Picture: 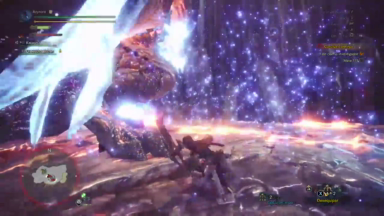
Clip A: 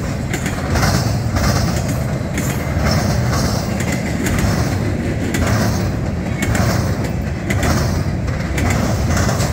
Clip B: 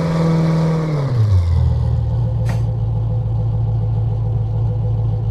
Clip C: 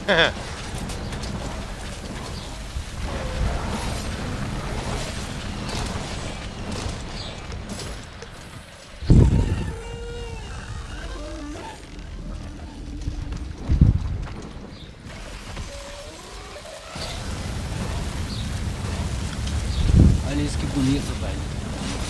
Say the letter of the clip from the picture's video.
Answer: C